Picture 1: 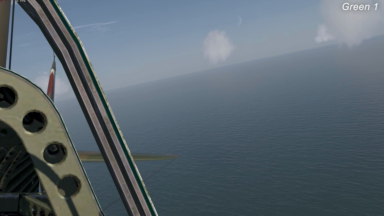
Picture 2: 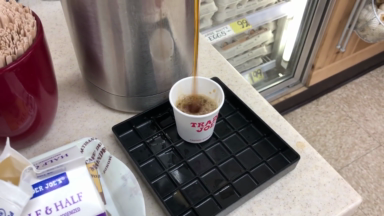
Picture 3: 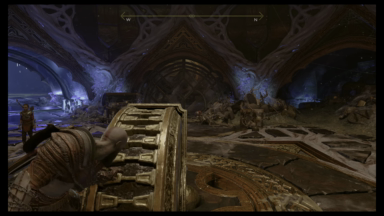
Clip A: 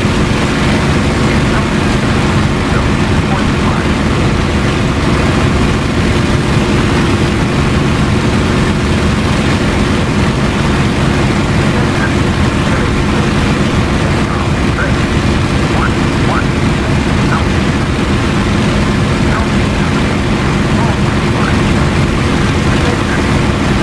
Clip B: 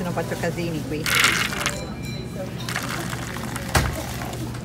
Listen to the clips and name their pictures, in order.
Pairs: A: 1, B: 2